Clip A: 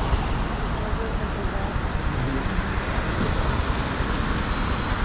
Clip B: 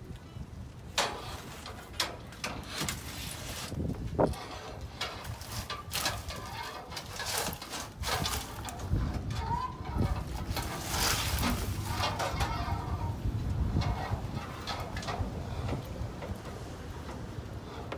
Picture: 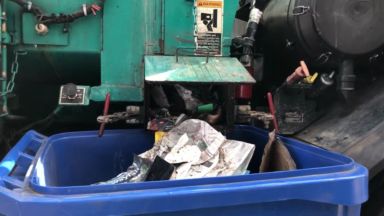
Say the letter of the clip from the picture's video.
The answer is B